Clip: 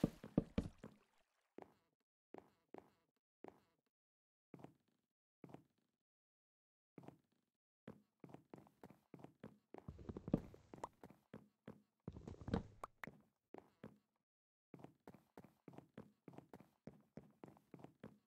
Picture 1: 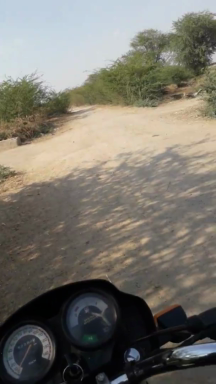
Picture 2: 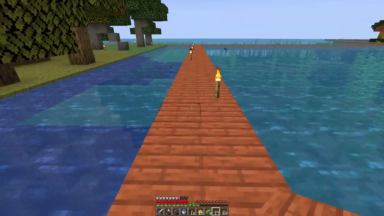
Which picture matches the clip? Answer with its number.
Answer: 2